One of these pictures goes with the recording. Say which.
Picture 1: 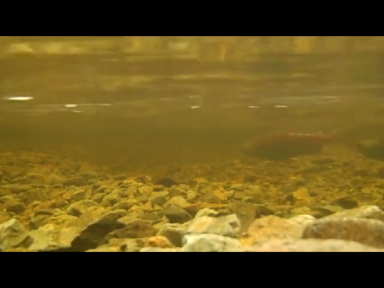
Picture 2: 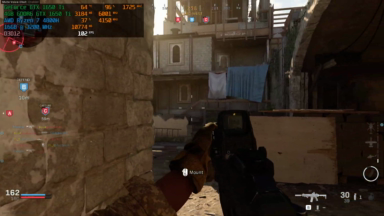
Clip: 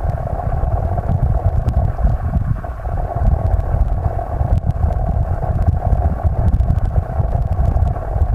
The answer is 1